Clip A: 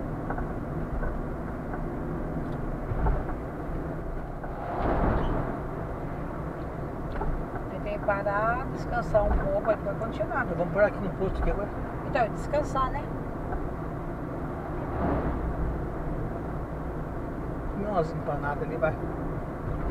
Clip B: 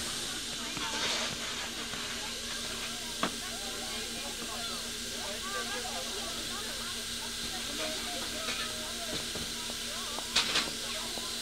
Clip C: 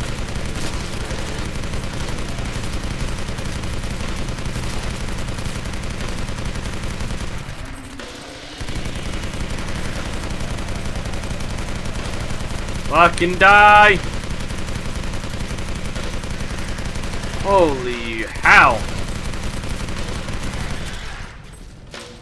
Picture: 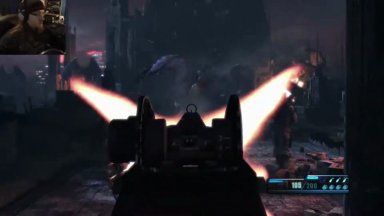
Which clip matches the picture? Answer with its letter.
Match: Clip C